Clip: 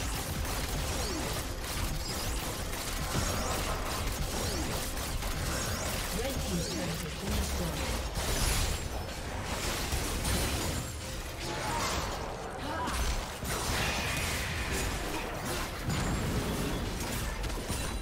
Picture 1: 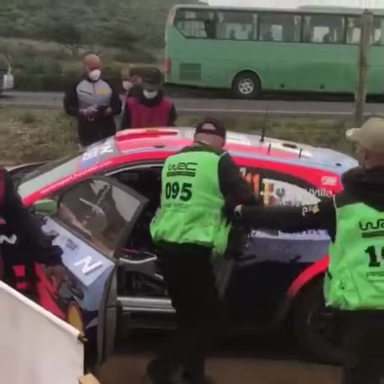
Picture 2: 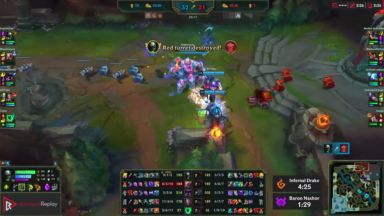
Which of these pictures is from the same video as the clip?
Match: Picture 2